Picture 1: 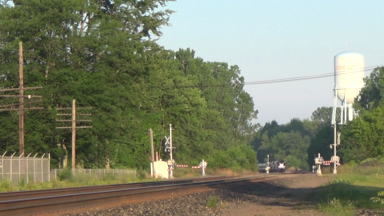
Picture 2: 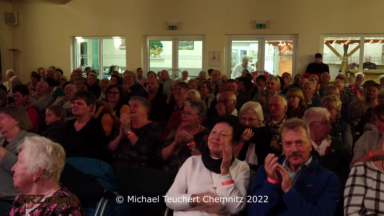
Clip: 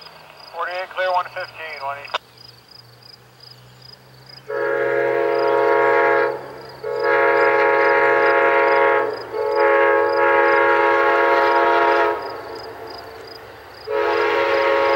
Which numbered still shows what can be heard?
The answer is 1